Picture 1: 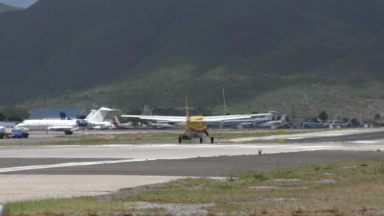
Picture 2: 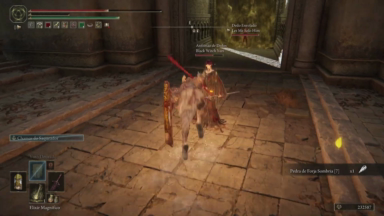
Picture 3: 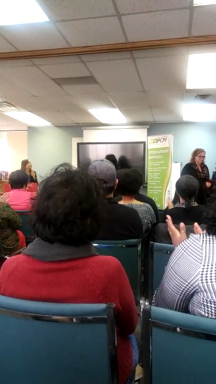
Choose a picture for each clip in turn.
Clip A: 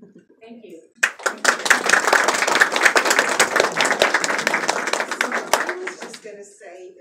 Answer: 3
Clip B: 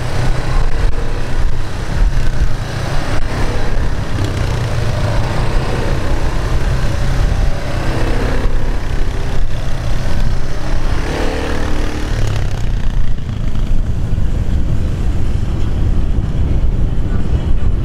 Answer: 1